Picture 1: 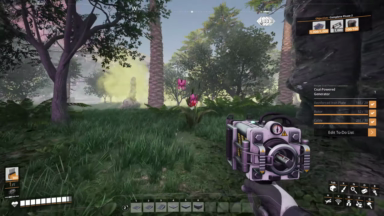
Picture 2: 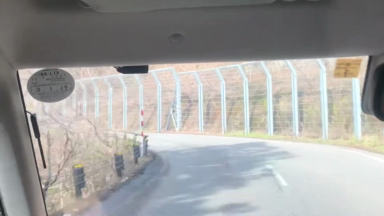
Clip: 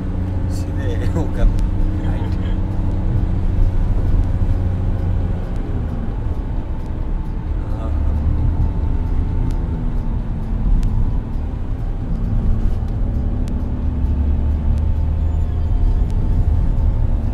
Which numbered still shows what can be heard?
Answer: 2